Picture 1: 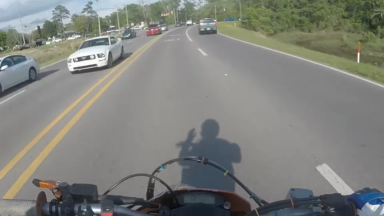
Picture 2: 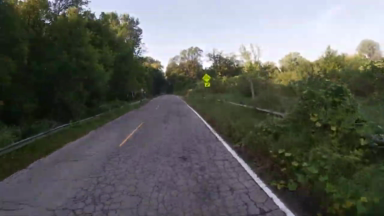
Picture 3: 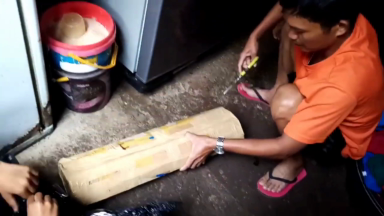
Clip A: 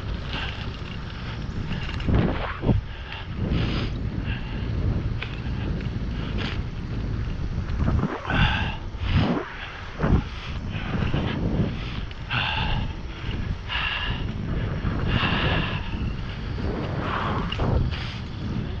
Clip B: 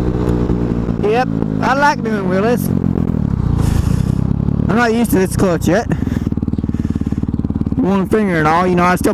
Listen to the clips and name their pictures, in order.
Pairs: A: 2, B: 1